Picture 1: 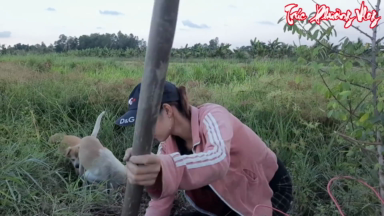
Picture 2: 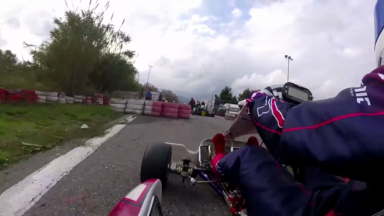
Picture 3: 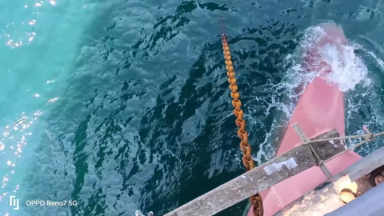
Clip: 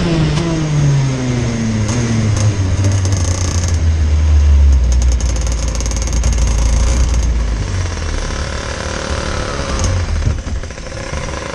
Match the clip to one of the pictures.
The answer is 2